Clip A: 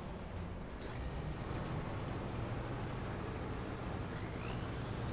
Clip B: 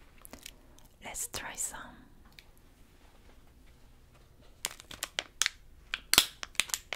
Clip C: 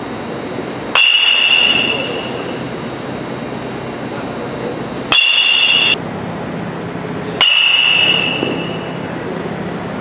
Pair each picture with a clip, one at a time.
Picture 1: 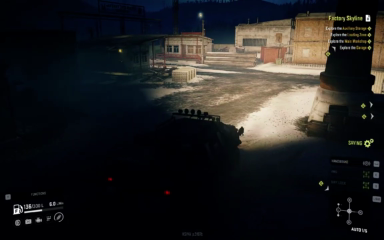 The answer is A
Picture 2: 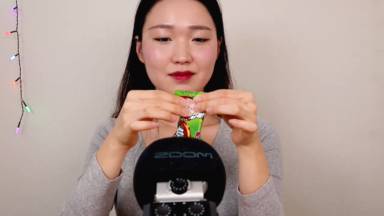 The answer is B